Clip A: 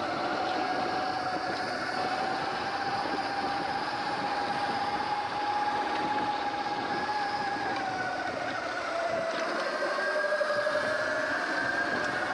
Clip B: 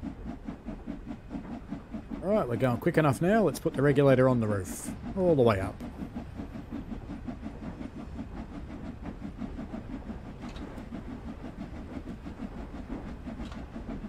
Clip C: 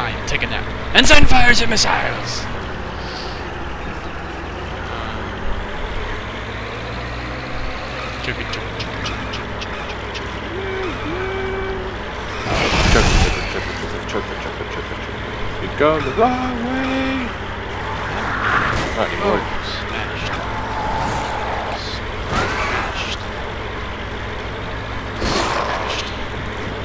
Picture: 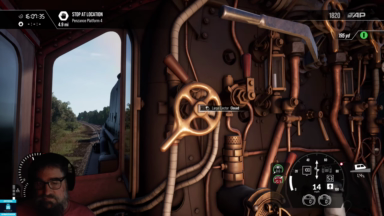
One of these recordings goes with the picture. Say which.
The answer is B